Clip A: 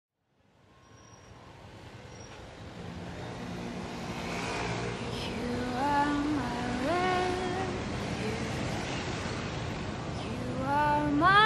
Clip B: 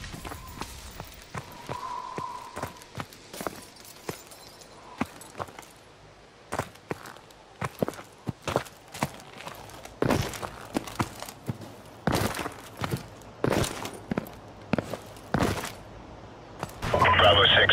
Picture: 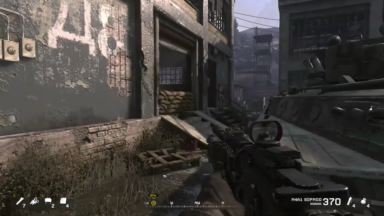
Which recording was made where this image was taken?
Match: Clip B